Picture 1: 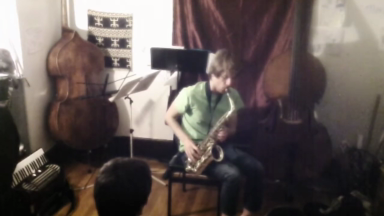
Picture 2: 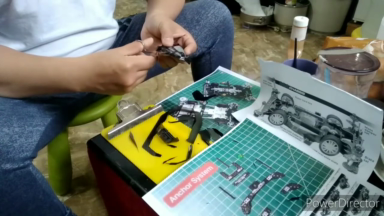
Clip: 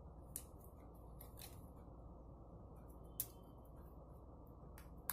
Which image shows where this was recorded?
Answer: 2